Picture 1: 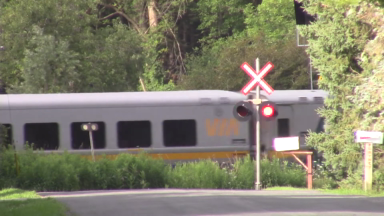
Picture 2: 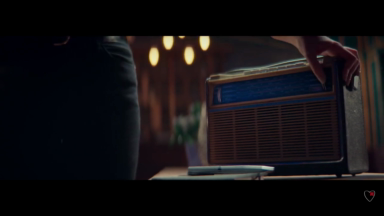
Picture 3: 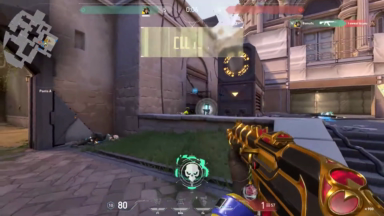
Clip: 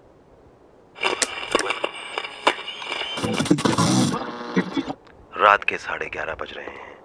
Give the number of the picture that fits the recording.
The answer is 2